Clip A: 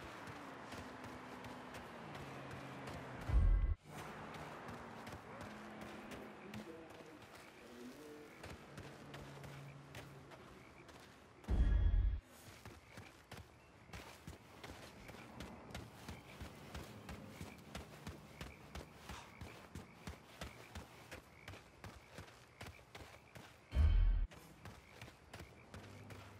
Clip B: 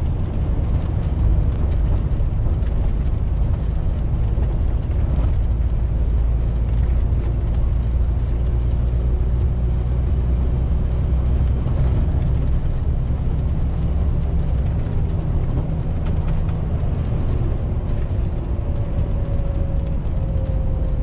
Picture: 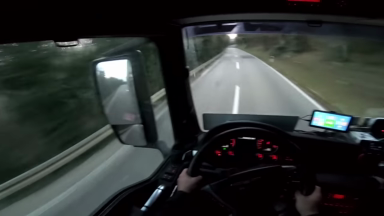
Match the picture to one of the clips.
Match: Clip B